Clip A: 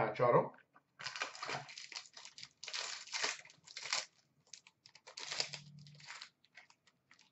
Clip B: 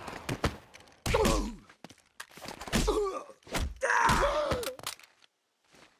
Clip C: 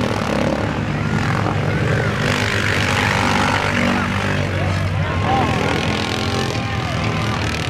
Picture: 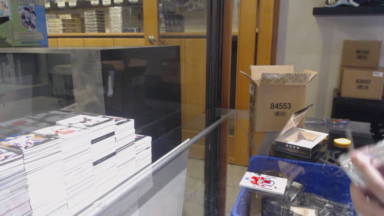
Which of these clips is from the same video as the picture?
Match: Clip A